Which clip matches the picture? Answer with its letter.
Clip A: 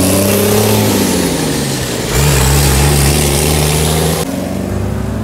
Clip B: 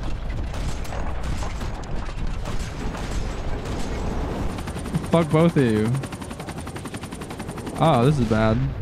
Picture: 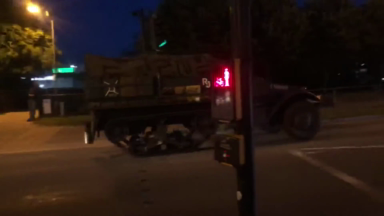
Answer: A